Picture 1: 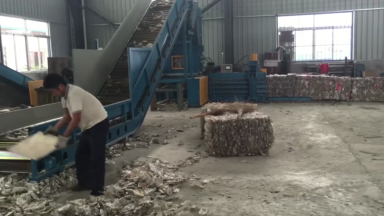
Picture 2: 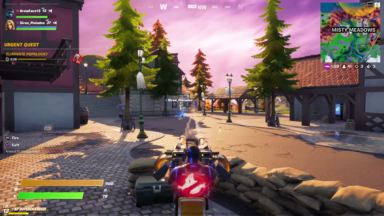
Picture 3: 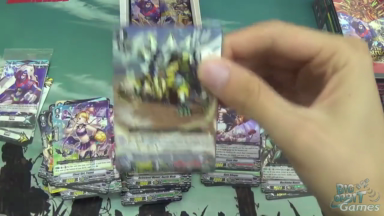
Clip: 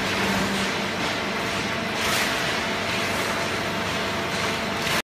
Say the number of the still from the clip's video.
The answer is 1